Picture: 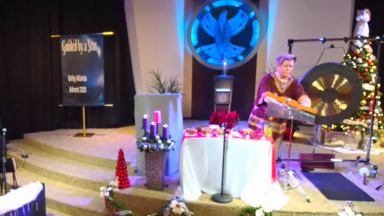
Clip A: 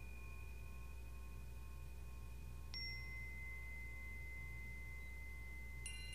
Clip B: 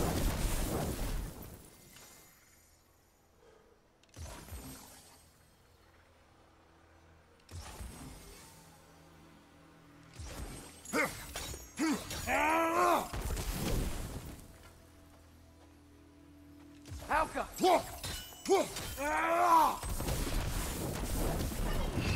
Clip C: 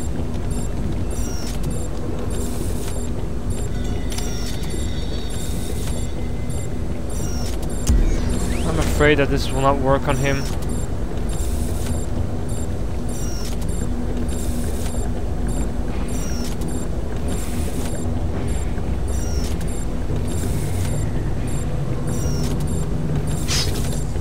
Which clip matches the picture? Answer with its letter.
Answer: A